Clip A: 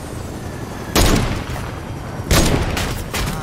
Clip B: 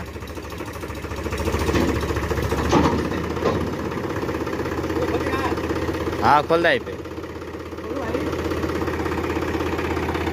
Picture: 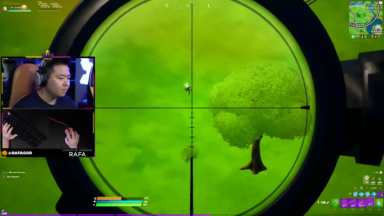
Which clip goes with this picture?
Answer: A